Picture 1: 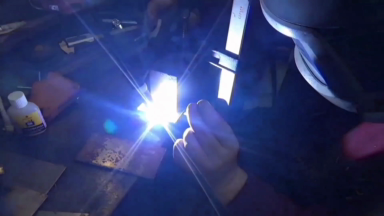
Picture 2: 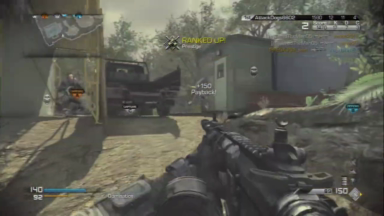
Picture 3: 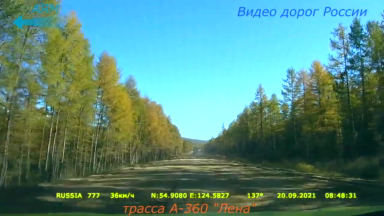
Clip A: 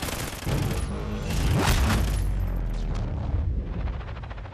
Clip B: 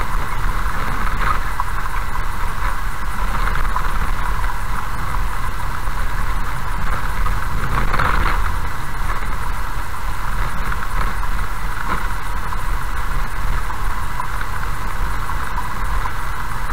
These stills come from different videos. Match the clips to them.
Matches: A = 2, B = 3